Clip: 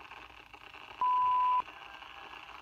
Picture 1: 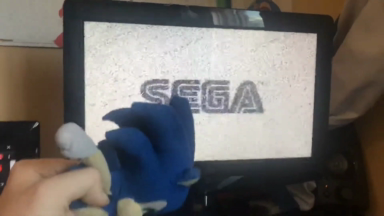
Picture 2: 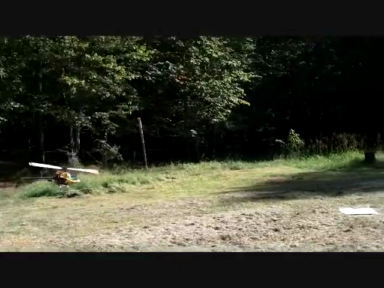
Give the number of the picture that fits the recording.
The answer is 1